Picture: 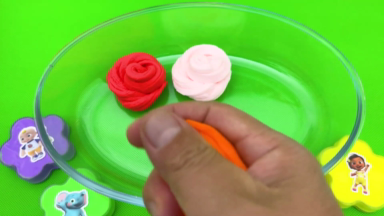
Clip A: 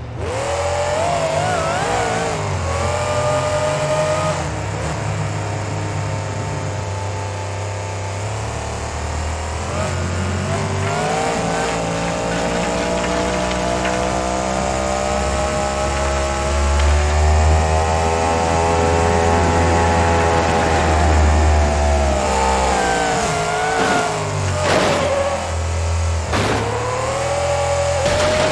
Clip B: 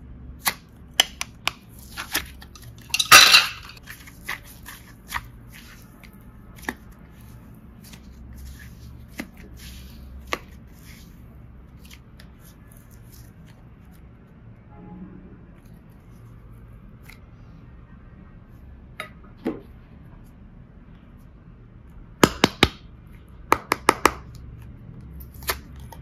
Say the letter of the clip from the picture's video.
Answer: B